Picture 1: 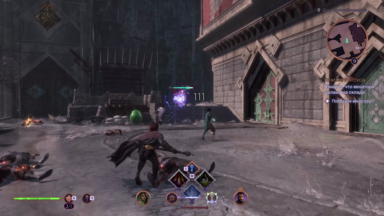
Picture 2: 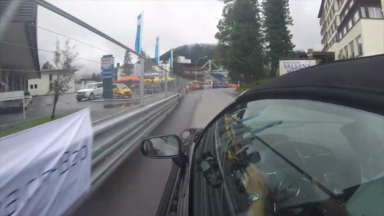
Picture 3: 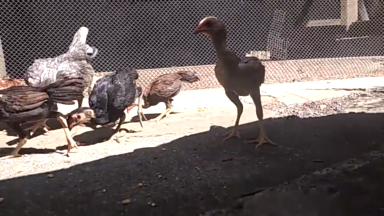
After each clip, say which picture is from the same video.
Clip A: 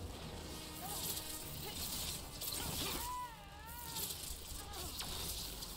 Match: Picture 1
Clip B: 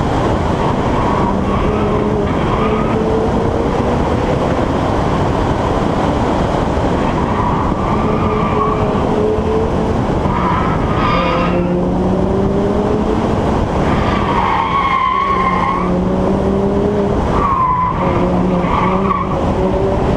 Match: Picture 2